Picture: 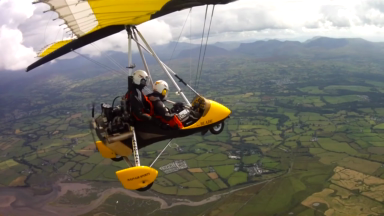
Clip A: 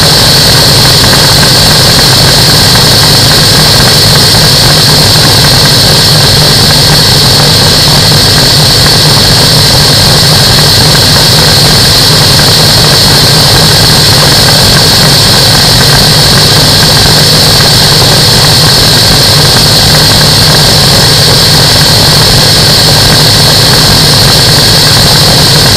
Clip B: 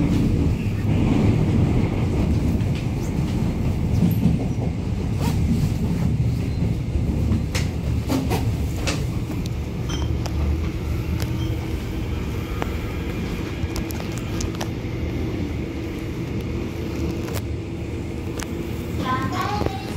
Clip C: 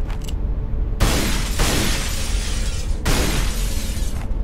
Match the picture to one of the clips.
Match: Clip A